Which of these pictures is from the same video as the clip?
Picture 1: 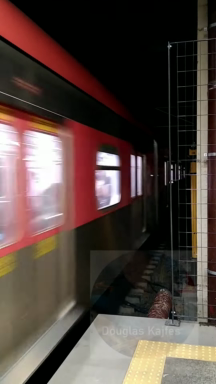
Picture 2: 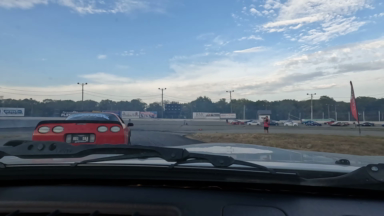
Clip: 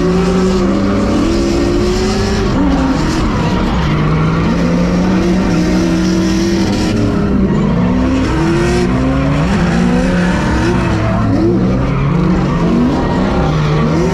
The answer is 2